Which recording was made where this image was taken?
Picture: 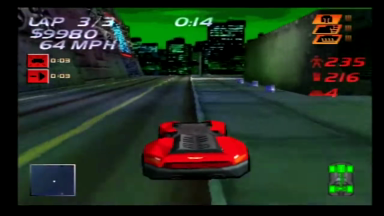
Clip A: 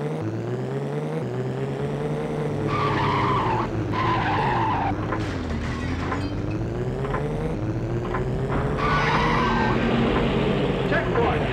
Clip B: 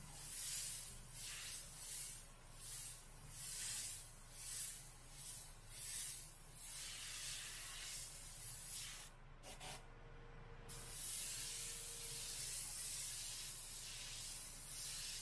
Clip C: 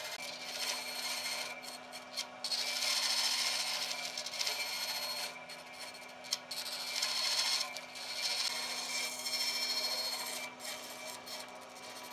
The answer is A